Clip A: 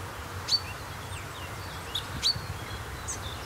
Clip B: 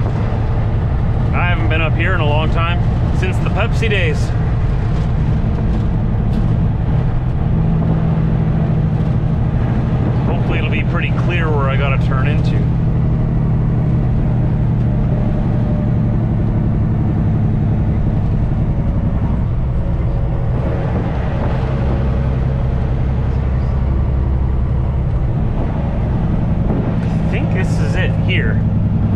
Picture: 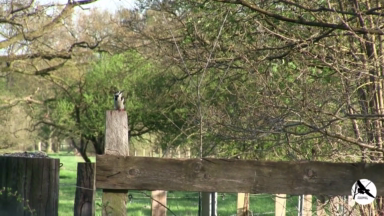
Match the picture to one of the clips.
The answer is A